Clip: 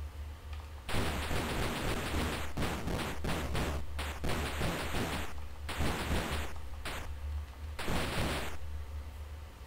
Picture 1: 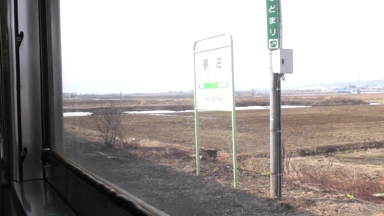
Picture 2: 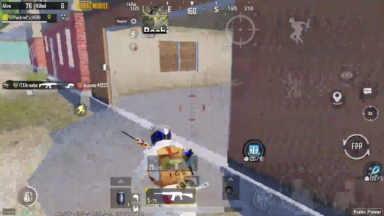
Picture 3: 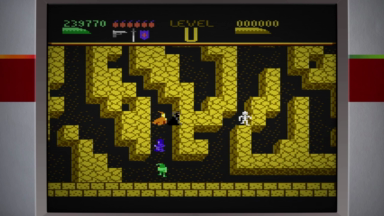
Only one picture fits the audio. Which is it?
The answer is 3